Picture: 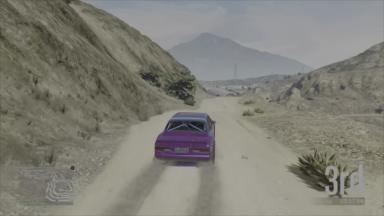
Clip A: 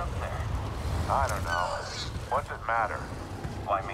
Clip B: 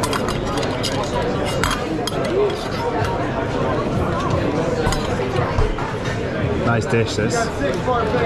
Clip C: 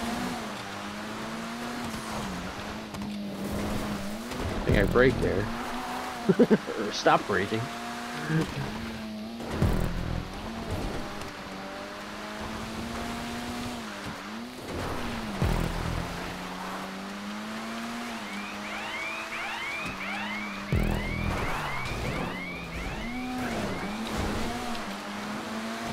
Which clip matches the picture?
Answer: C